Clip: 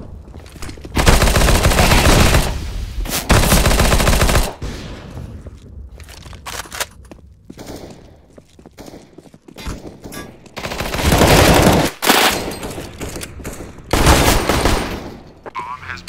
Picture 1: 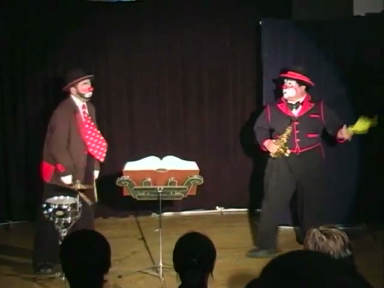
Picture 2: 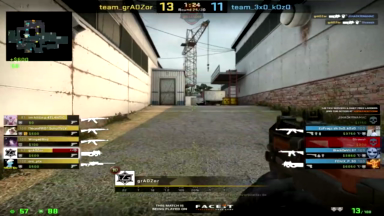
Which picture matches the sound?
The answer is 2